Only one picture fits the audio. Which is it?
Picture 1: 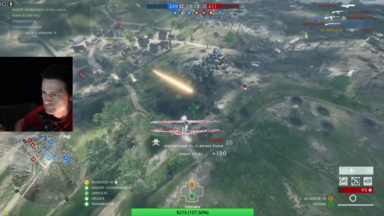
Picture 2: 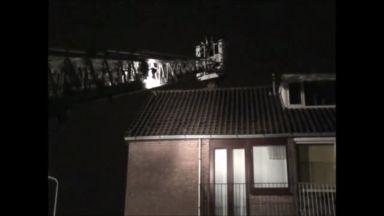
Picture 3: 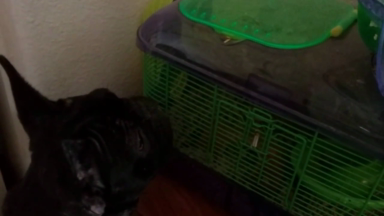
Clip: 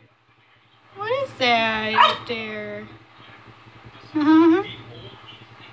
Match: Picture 3